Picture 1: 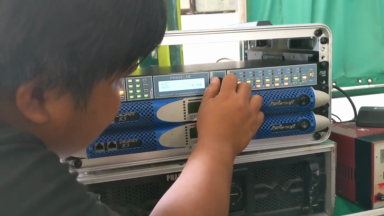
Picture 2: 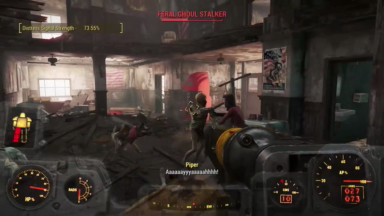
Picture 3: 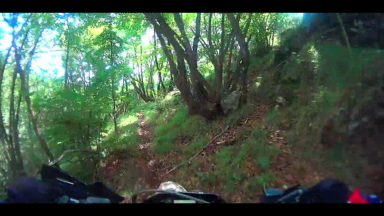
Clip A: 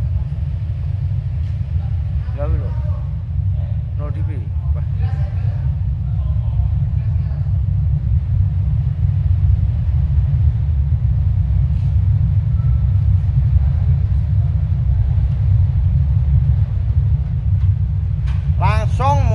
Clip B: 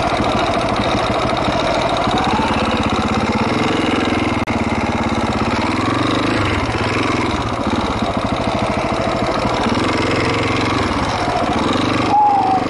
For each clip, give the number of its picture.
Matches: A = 1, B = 3